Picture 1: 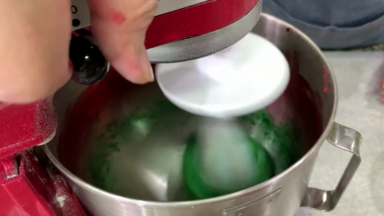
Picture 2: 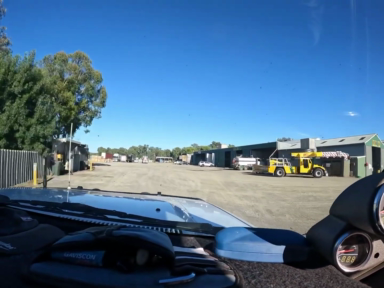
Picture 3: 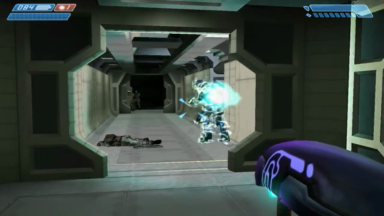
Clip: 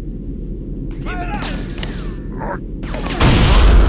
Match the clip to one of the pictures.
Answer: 3